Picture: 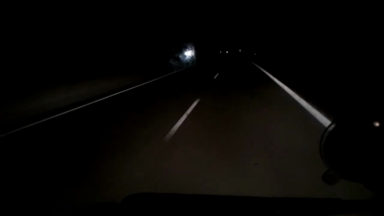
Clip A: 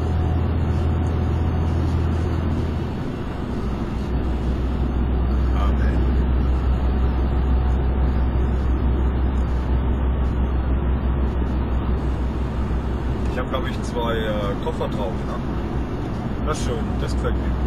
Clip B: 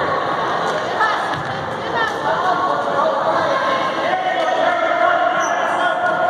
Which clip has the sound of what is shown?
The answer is A